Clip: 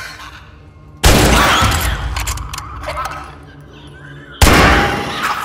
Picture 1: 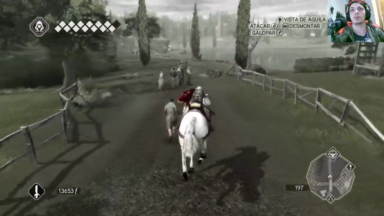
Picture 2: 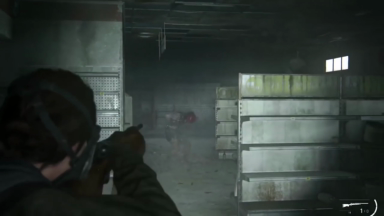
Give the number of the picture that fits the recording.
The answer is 2